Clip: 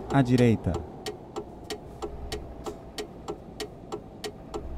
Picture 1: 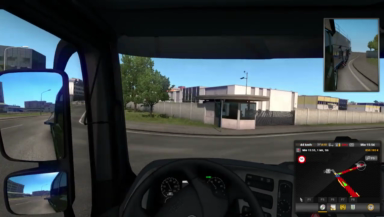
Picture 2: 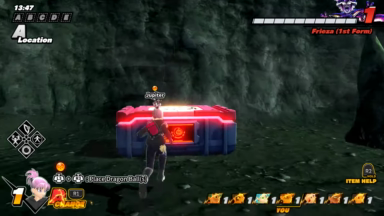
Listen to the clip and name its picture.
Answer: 1